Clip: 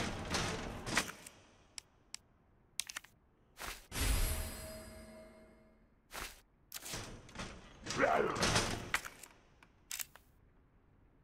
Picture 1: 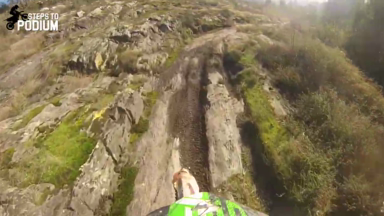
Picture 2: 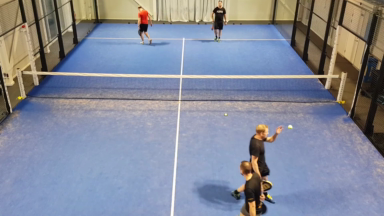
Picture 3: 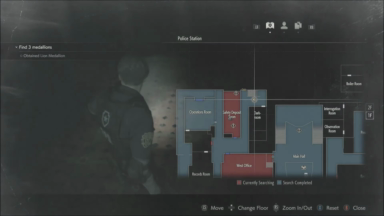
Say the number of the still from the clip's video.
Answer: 3